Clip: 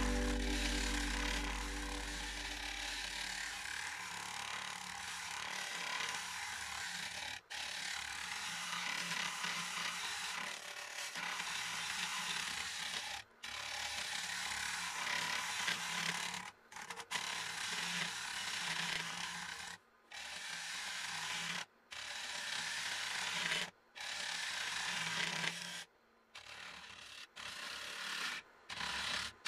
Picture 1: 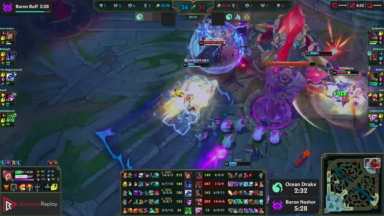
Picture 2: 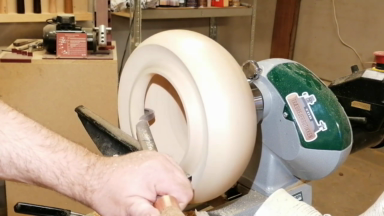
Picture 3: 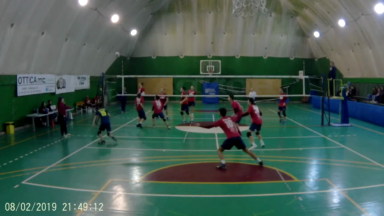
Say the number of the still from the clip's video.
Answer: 2